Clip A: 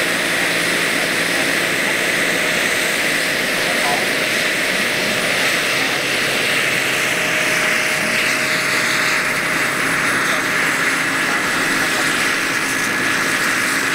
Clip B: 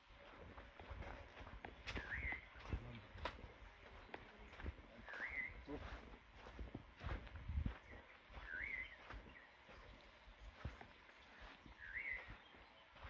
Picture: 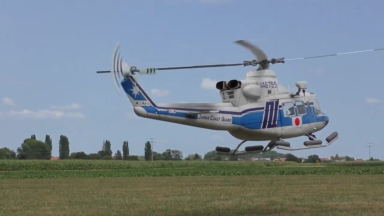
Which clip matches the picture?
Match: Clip A